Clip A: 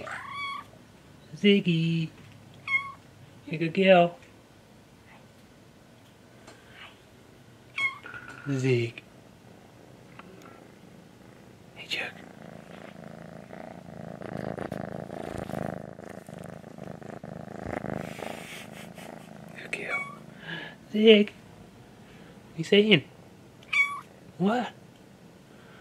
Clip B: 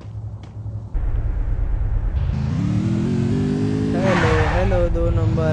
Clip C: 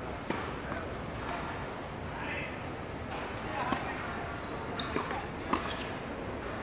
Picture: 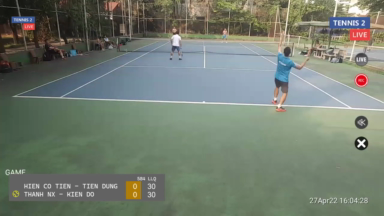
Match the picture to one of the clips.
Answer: C